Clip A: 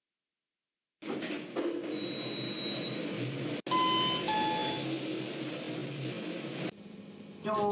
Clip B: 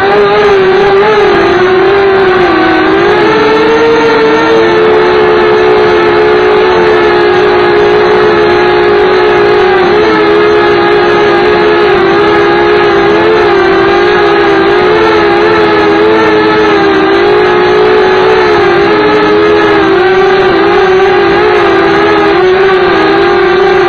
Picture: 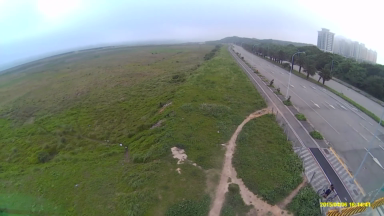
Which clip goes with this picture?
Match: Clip B